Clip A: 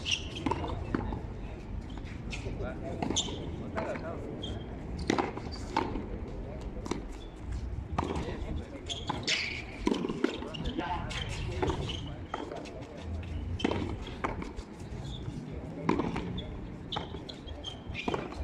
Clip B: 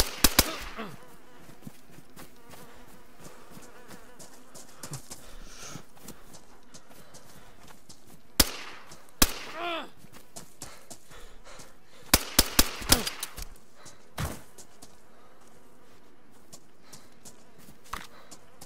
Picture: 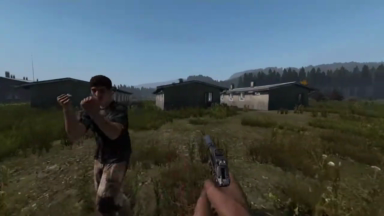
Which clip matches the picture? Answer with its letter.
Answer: B